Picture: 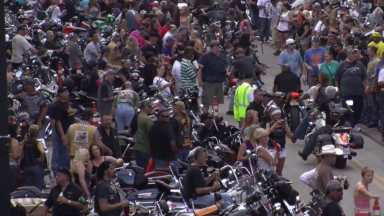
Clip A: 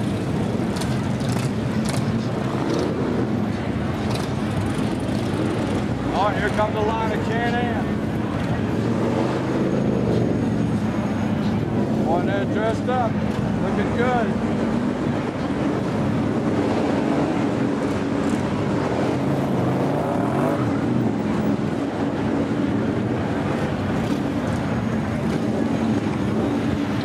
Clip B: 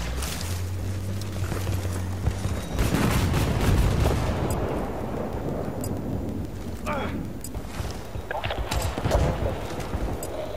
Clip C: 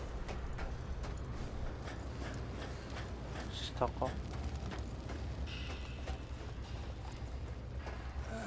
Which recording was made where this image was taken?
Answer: A